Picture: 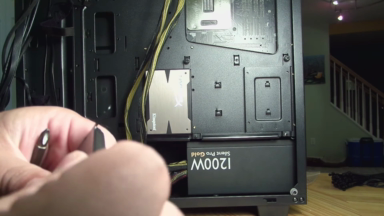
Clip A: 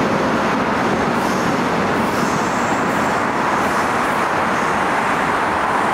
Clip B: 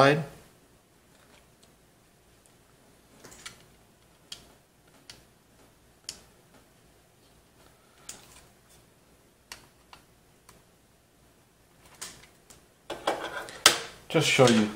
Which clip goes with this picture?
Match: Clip B